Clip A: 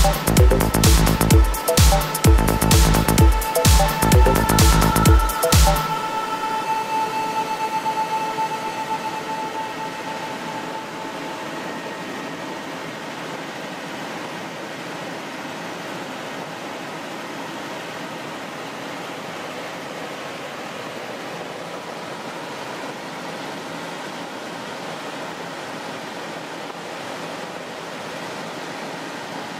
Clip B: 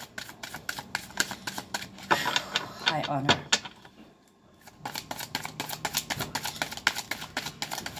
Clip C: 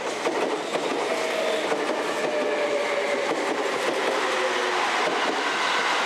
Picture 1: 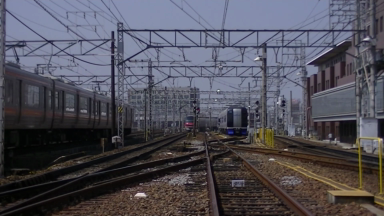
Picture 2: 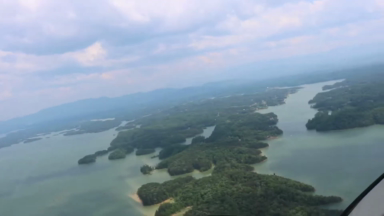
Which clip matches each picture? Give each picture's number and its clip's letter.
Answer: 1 C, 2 A